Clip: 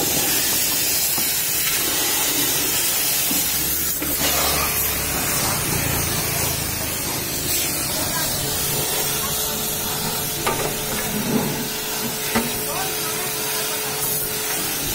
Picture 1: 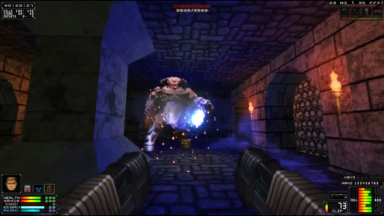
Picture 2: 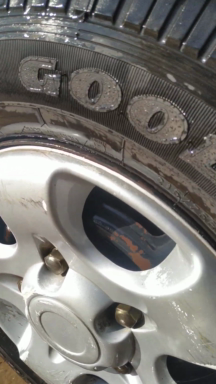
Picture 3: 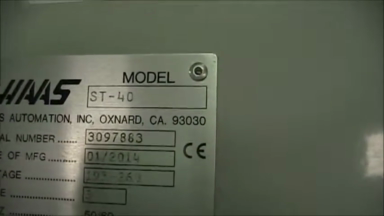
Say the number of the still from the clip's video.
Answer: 2